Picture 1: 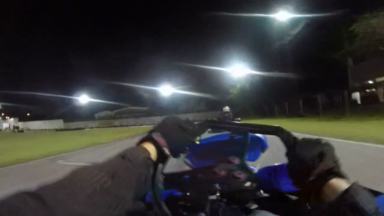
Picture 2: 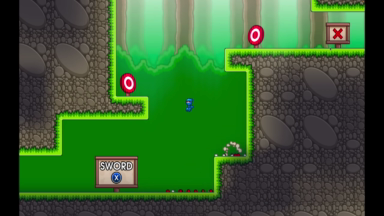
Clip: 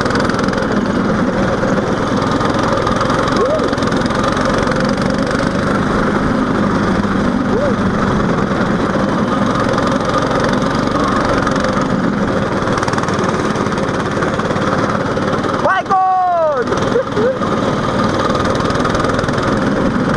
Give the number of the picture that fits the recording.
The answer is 1